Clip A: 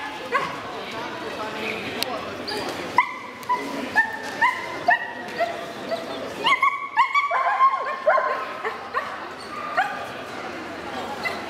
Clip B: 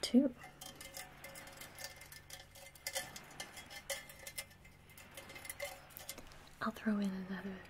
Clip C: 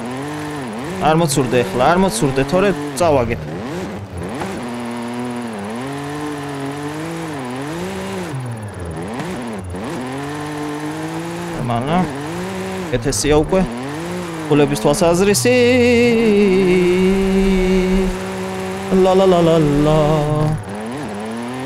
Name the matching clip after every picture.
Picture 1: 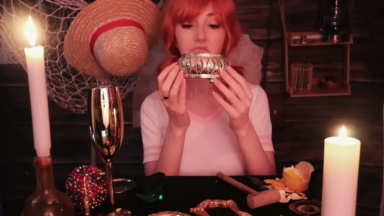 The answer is B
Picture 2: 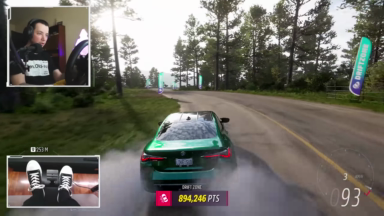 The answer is C